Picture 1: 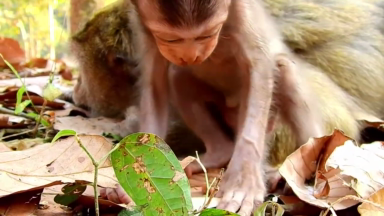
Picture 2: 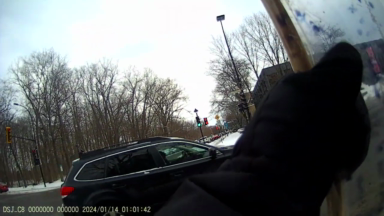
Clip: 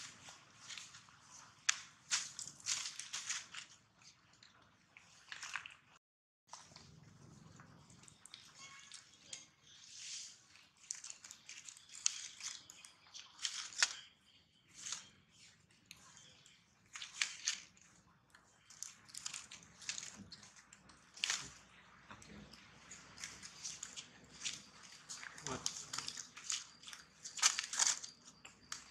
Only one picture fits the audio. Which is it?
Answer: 1